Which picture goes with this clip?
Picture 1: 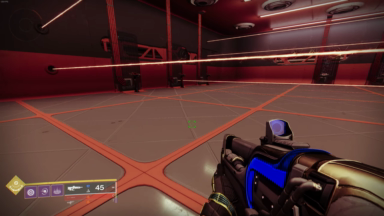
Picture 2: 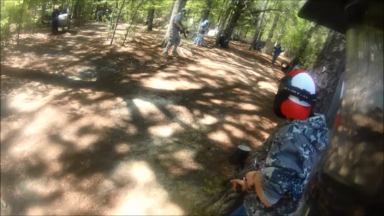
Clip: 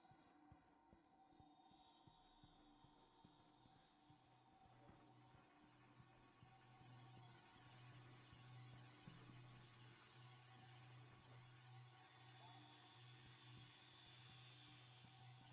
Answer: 1